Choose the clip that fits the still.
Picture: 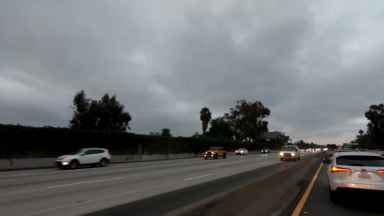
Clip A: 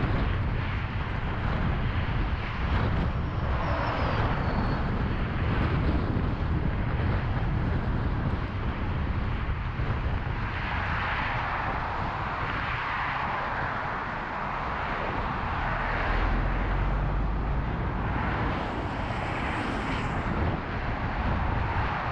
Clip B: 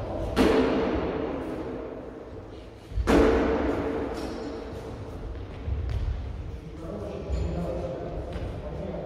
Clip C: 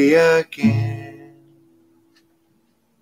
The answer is A